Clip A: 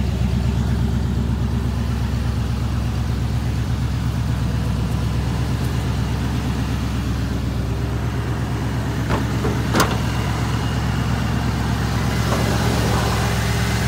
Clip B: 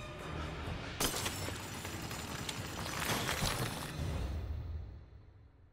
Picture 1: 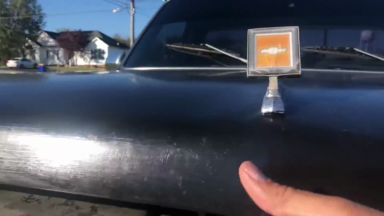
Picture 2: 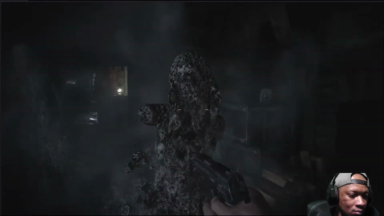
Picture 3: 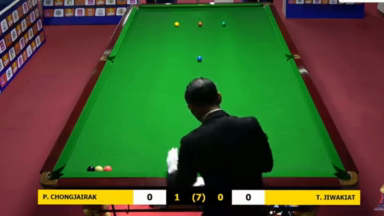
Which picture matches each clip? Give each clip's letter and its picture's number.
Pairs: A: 1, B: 2